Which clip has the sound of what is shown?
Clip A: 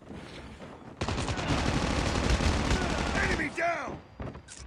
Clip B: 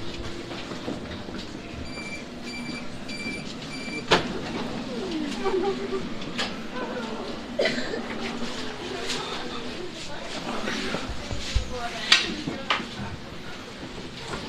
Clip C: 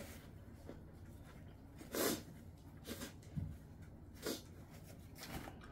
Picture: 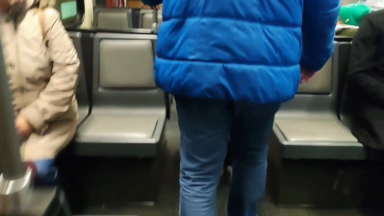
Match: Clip B